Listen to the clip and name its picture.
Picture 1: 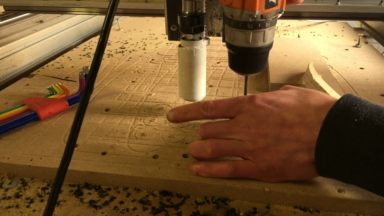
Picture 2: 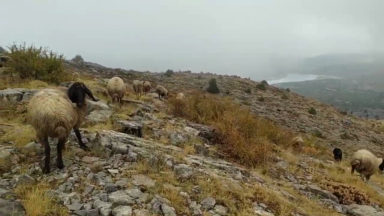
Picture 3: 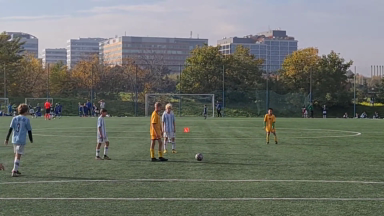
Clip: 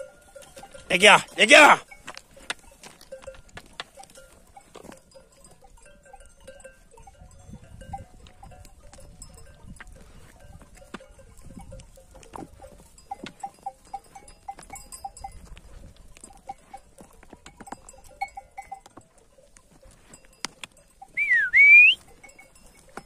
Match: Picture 2